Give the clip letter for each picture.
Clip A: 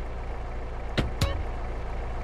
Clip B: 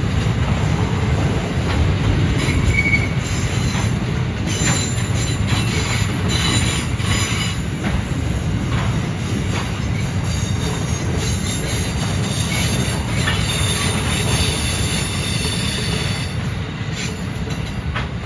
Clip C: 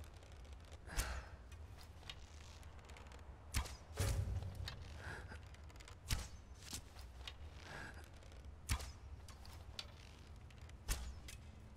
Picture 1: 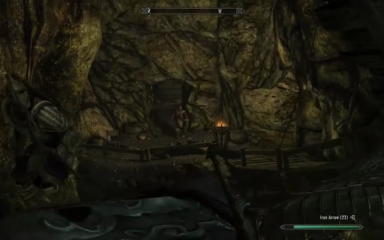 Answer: C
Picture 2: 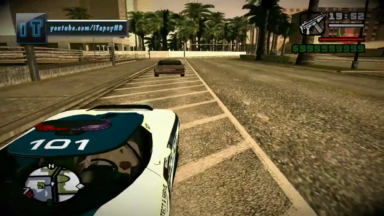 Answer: A